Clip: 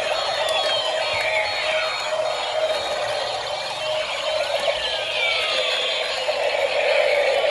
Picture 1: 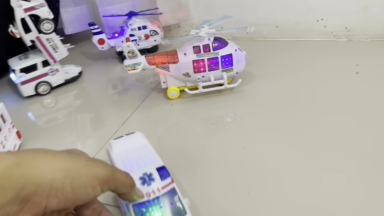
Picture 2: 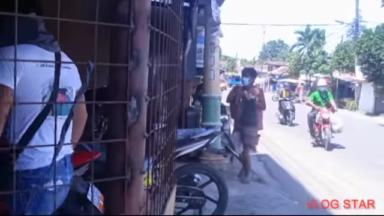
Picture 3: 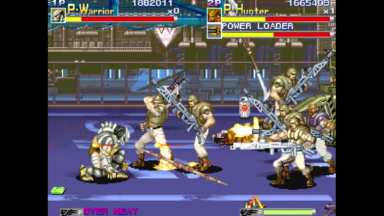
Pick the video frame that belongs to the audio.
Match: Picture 1